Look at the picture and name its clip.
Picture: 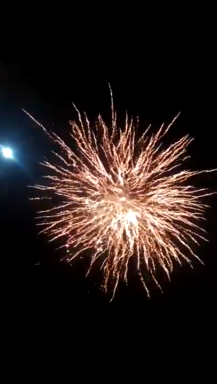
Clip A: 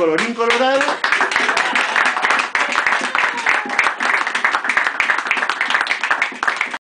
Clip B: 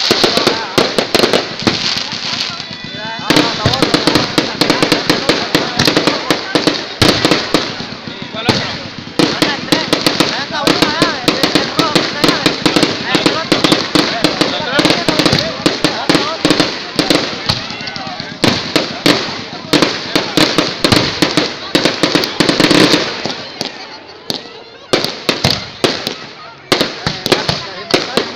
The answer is B